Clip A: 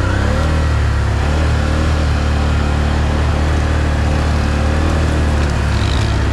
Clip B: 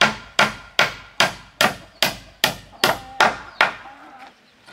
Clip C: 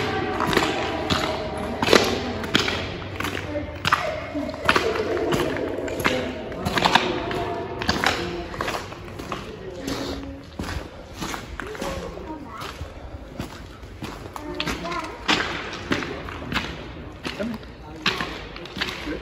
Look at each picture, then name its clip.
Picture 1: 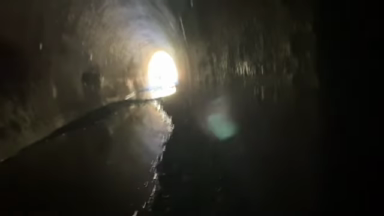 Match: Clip C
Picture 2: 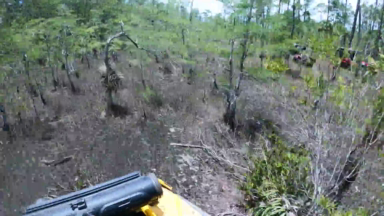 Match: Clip A